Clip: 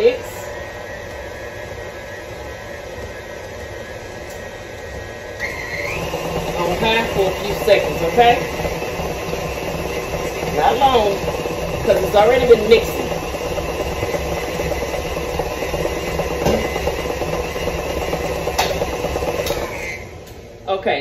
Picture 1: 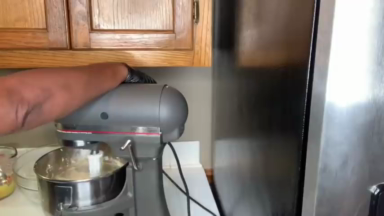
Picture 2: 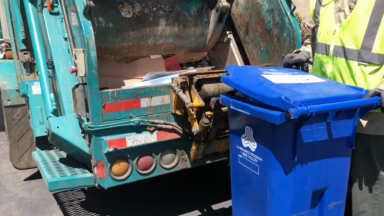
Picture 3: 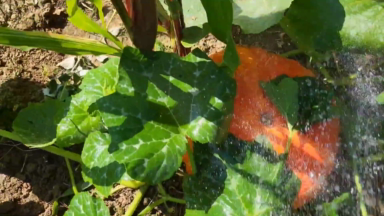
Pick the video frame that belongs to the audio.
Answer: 1